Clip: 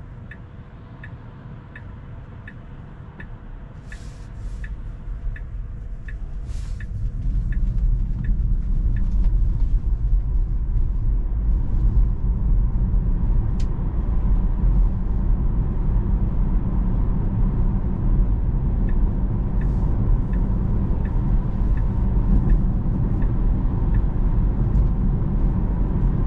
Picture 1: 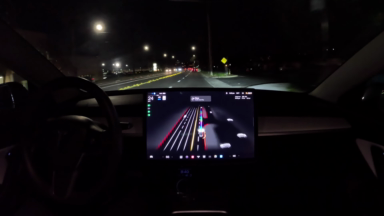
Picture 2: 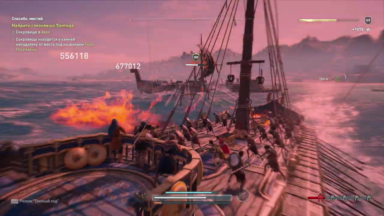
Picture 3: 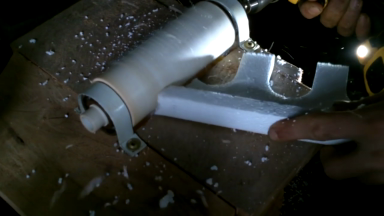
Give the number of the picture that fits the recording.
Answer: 1